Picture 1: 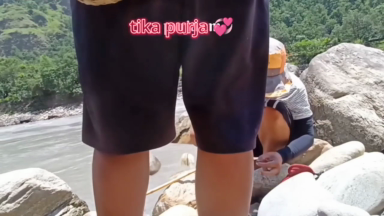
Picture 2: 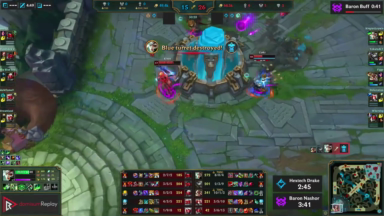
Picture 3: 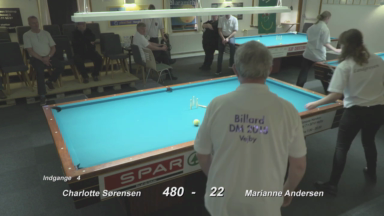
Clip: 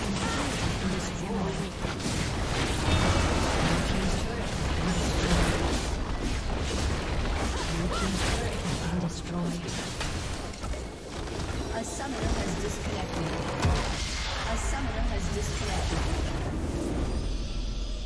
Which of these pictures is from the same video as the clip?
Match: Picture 2